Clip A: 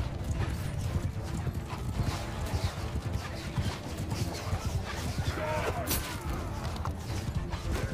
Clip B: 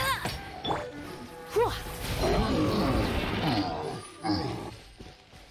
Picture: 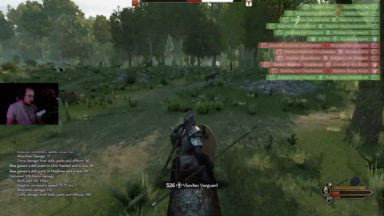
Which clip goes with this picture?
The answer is A